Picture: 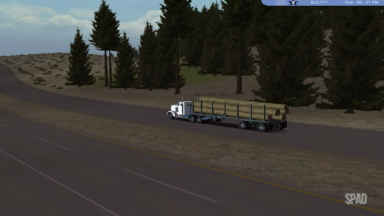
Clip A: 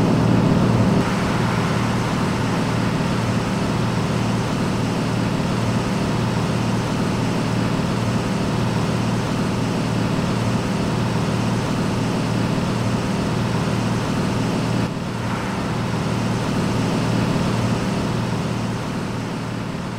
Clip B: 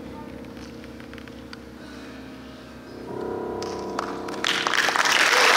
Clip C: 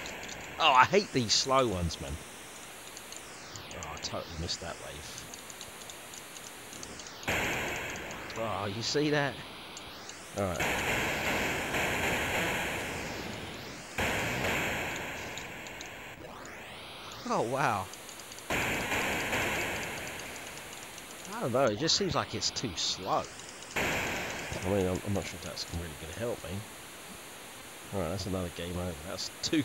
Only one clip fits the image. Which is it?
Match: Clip A